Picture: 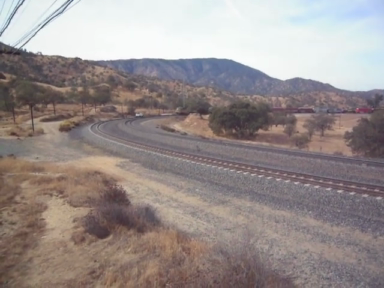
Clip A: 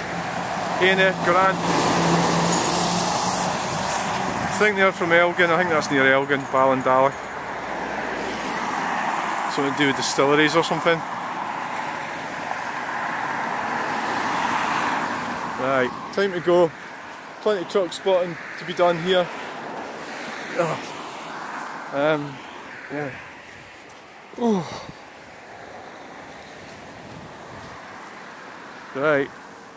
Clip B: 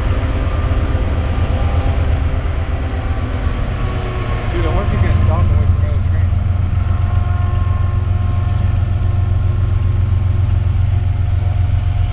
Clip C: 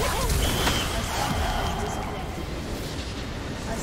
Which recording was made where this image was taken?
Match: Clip B